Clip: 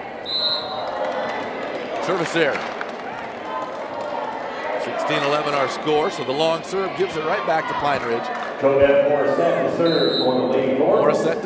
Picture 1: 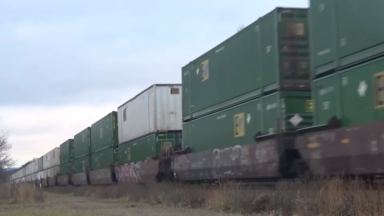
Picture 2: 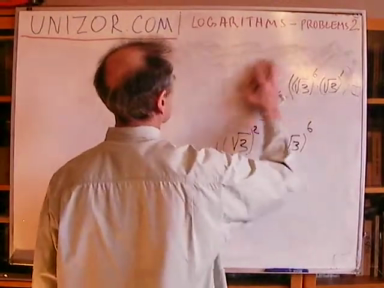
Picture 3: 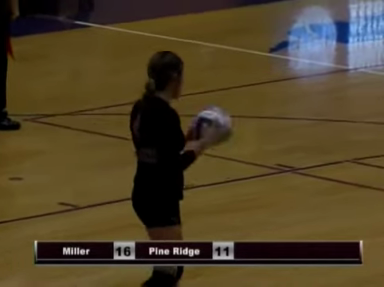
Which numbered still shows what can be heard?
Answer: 3